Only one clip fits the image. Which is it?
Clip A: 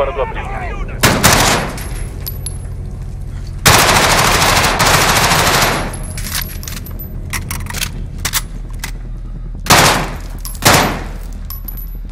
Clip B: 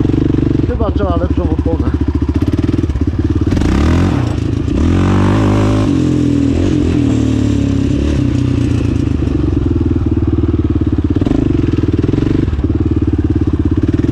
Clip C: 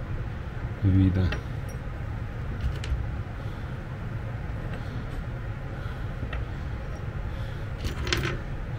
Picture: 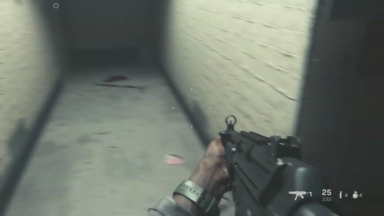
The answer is A